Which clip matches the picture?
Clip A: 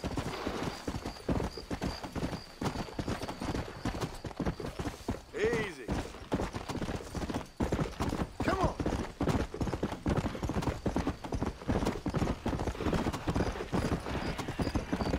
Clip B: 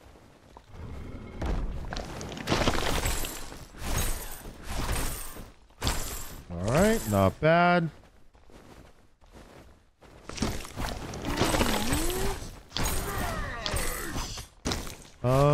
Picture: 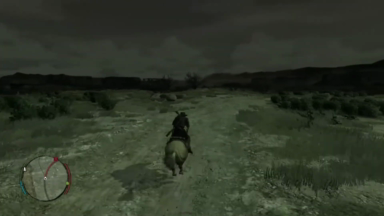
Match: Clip A